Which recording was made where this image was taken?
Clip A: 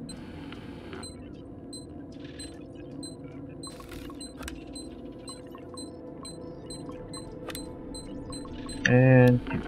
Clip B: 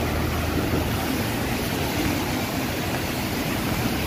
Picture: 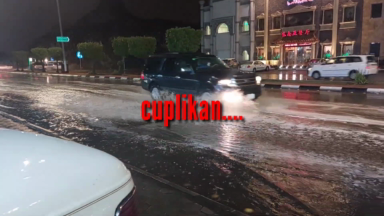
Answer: B